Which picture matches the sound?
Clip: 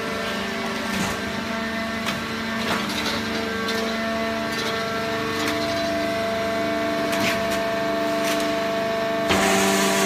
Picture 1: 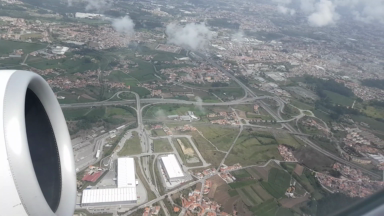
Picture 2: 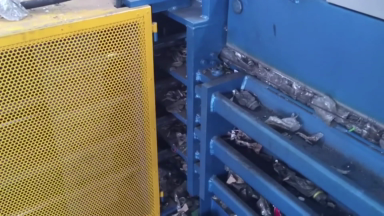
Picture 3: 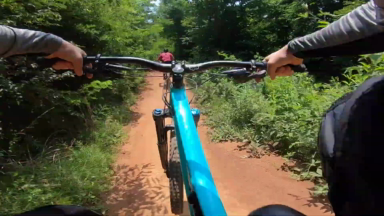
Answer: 2